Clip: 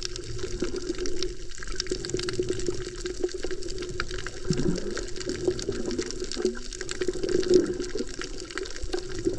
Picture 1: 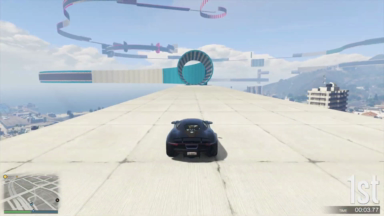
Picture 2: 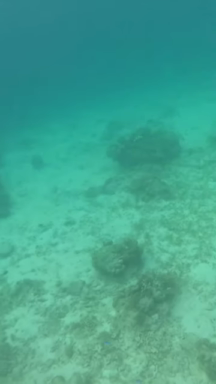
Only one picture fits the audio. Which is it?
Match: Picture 2